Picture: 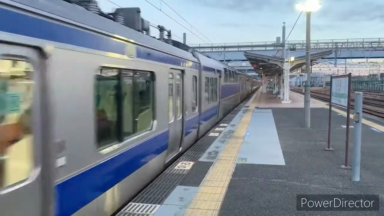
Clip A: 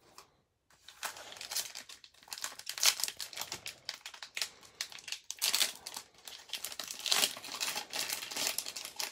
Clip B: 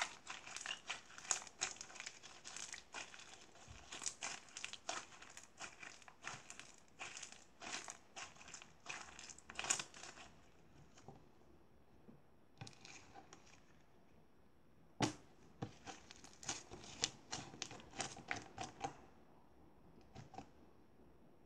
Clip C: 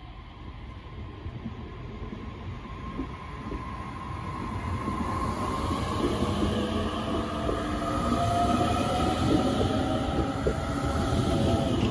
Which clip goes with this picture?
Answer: C